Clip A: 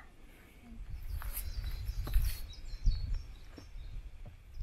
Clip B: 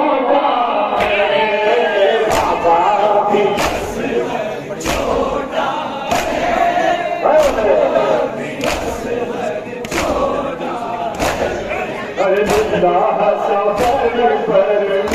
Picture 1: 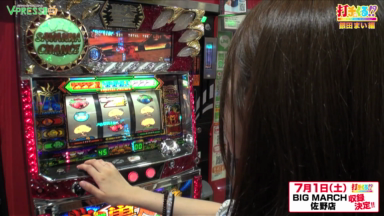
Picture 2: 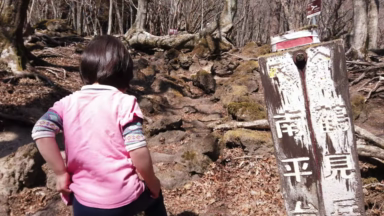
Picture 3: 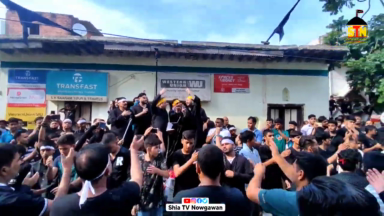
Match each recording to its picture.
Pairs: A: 2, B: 3